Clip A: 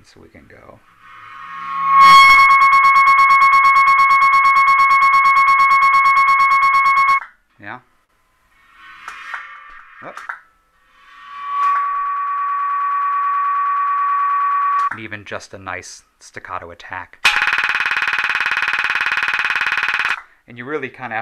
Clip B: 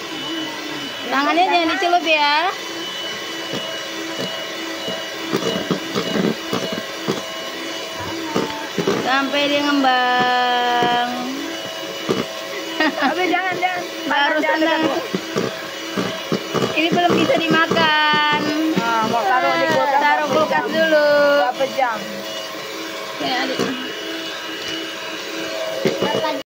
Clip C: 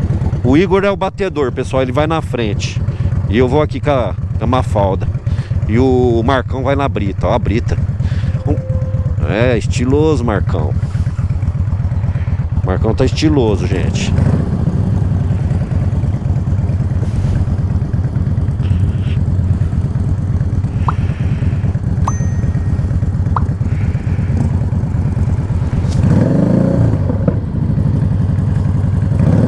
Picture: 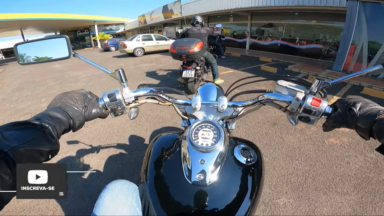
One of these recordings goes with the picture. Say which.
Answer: C